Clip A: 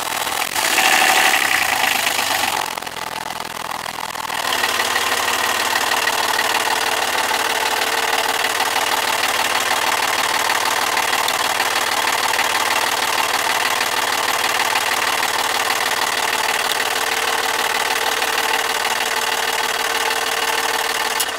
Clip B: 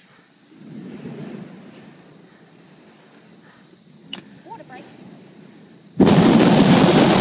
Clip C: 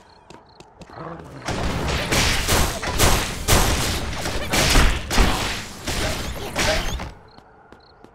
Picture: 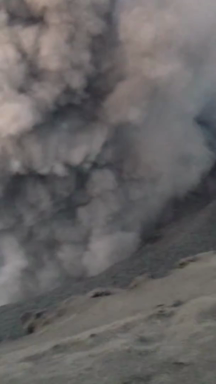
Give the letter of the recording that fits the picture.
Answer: B